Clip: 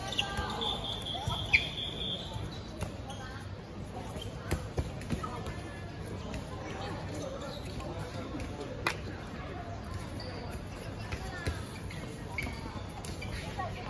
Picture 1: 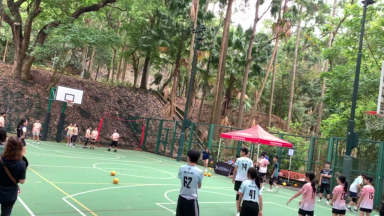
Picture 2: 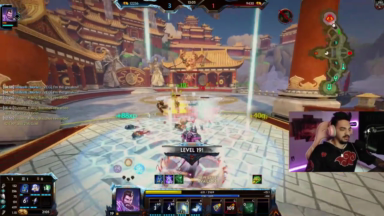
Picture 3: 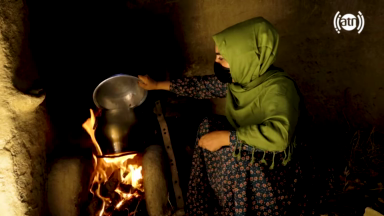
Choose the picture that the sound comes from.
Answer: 1